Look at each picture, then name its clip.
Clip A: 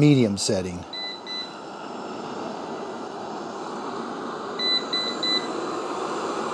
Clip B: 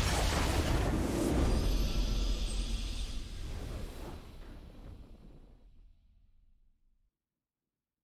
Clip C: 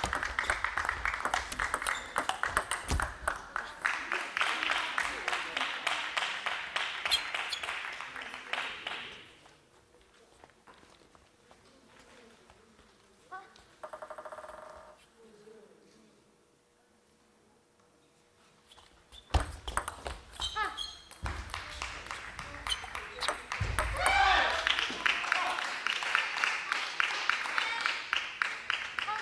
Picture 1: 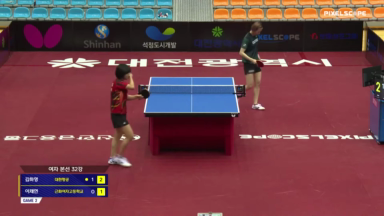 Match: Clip C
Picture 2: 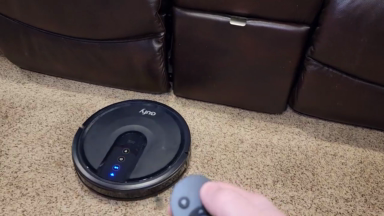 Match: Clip A